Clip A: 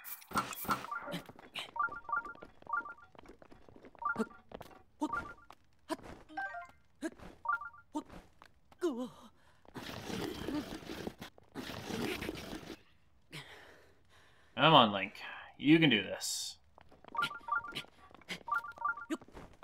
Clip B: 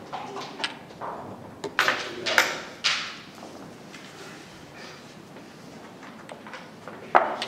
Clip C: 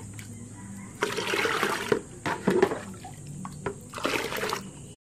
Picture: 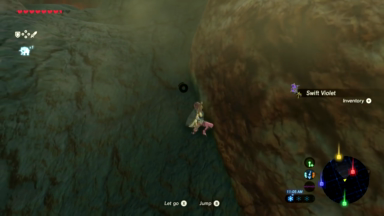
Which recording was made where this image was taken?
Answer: A